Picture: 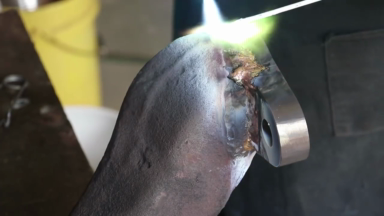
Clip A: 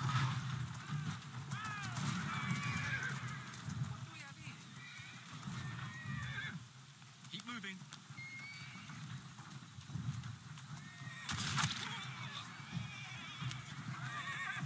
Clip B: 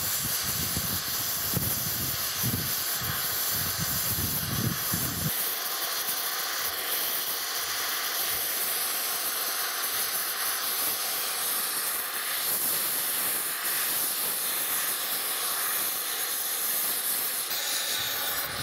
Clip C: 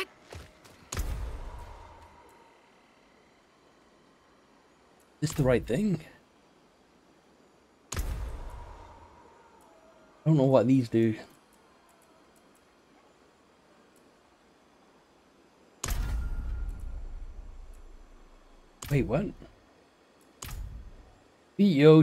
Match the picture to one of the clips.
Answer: B